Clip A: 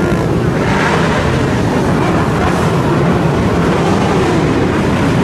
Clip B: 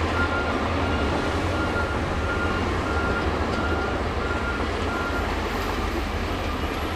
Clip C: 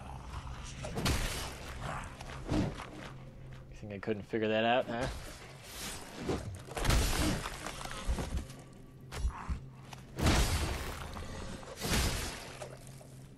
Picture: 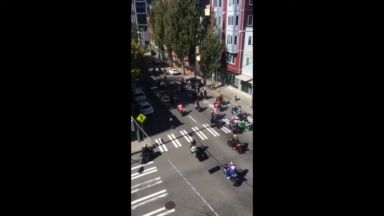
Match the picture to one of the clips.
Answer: A